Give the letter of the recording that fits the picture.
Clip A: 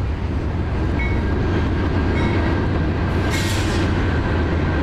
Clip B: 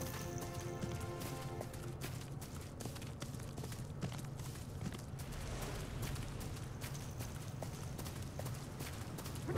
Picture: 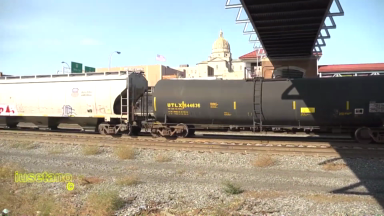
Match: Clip A